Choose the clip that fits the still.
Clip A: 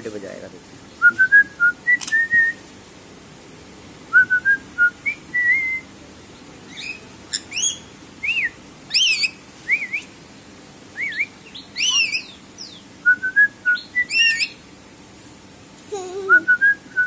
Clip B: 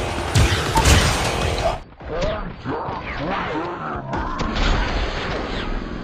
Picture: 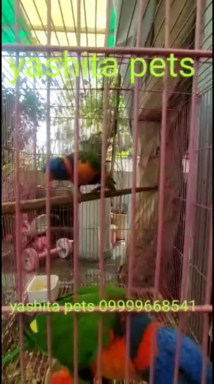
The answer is A